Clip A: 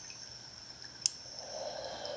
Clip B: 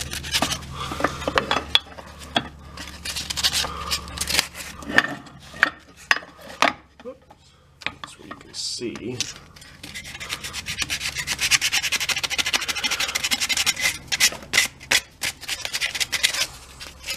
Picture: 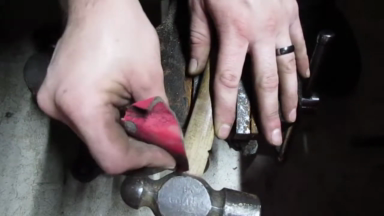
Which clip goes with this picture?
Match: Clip B